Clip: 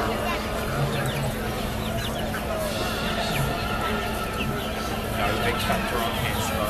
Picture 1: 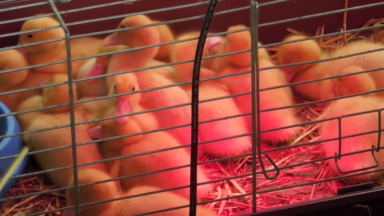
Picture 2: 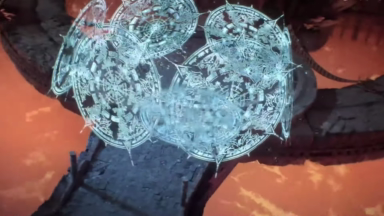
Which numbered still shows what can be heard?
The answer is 1